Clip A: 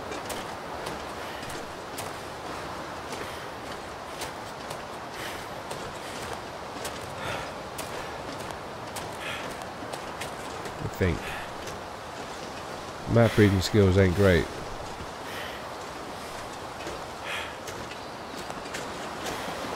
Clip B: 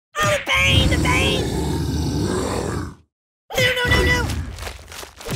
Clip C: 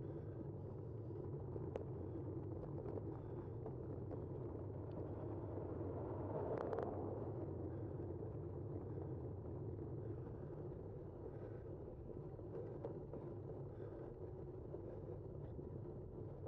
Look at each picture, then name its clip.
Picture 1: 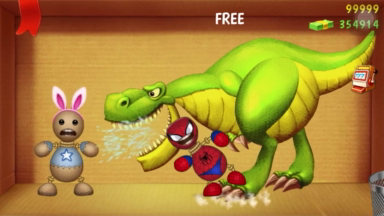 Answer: B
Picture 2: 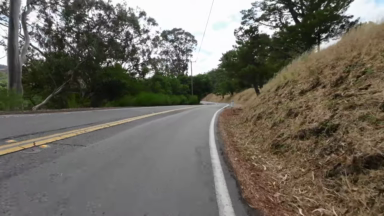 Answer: C